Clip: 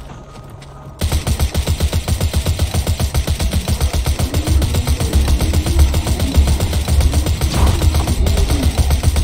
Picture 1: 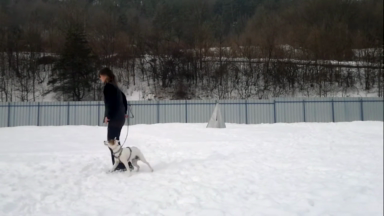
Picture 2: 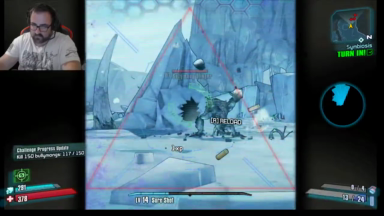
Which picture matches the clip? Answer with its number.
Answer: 2